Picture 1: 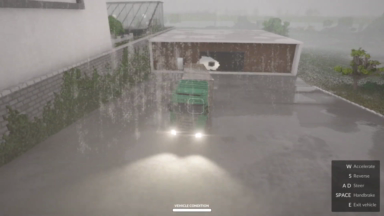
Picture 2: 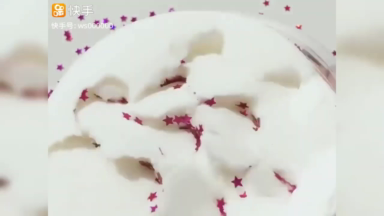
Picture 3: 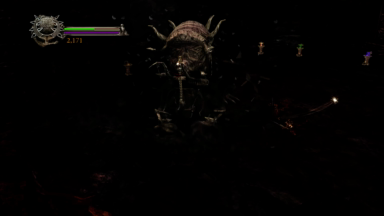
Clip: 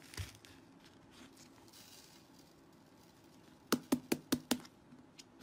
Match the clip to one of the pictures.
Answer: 2